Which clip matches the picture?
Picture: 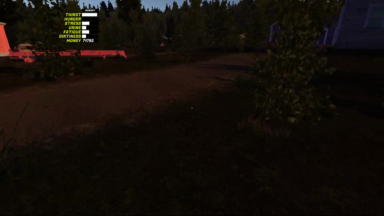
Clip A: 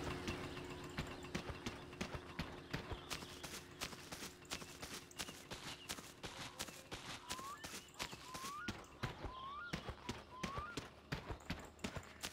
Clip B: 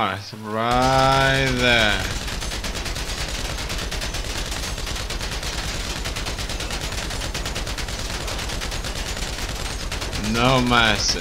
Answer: A